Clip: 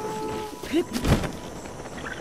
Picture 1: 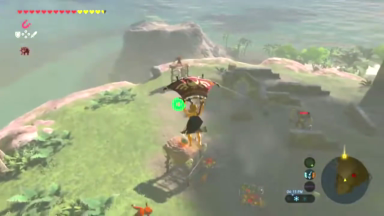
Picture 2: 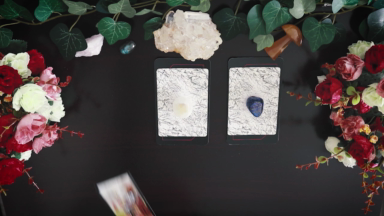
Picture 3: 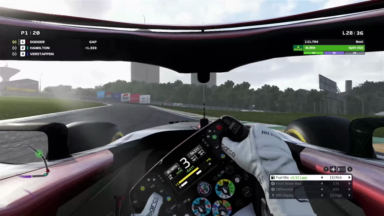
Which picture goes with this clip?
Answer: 1